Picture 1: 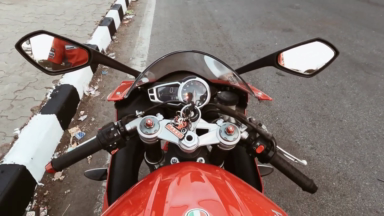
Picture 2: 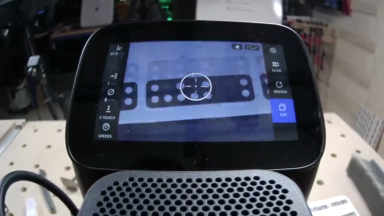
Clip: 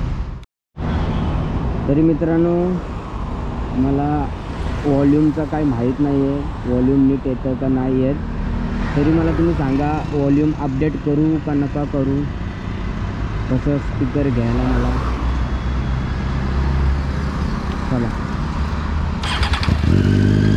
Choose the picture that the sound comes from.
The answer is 1